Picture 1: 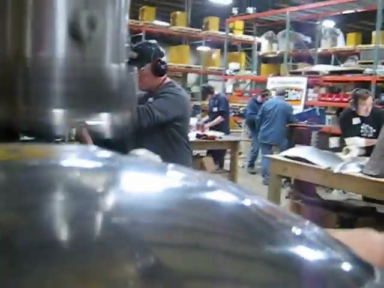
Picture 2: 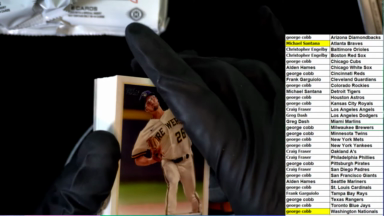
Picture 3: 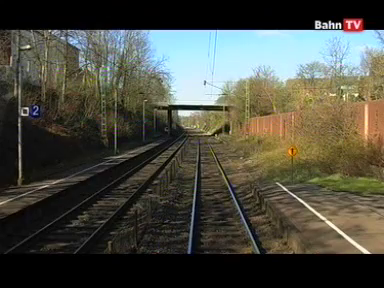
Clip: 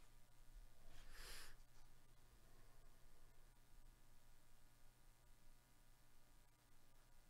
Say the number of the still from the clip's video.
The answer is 2